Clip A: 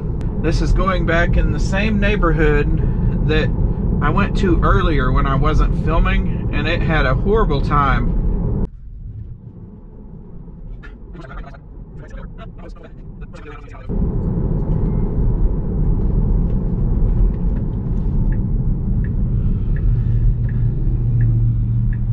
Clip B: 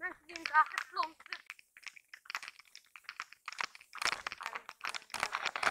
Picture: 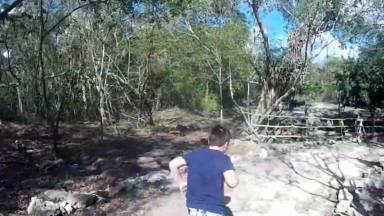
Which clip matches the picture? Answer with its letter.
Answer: B